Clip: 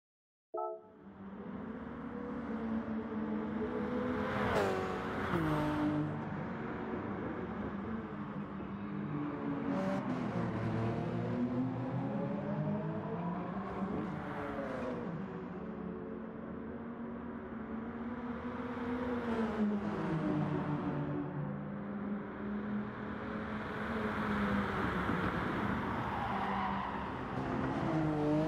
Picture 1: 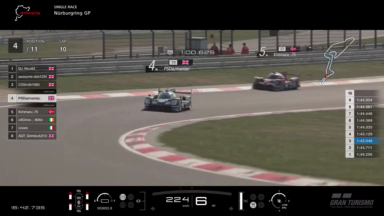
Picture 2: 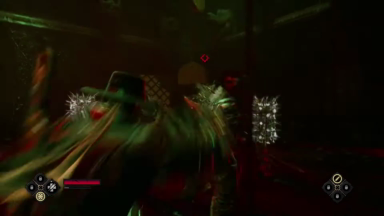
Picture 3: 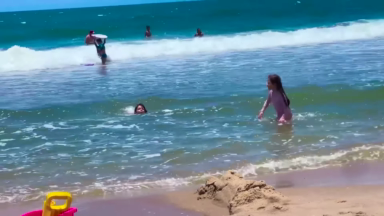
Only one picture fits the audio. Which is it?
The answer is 1